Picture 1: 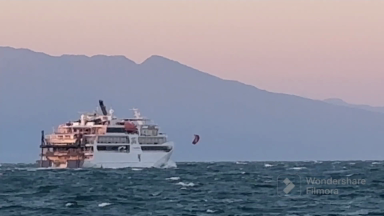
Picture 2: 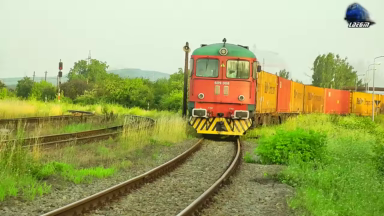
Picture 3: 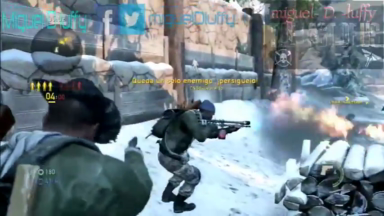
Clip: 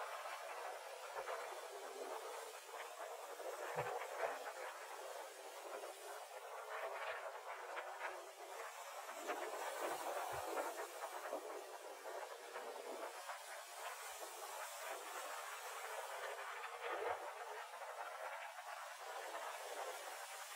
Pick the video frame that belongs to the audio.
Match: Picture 1